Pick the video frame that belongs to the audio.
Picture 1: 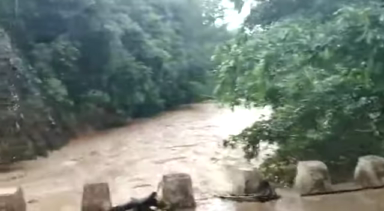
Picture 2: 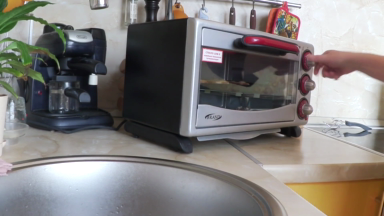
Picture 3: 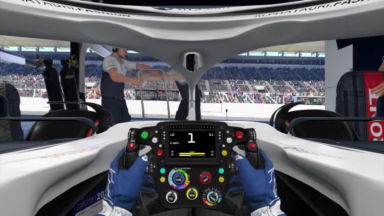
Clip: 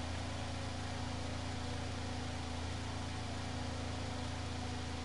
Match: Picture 3